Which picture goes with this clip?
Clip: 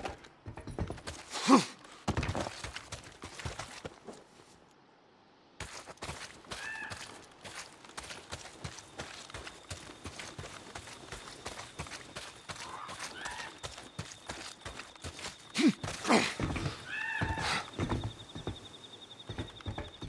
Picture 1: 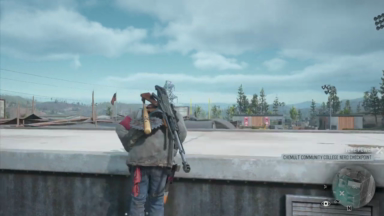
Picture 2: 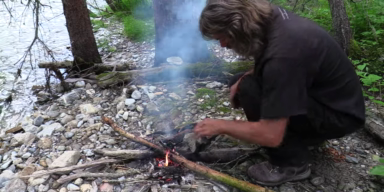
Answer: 1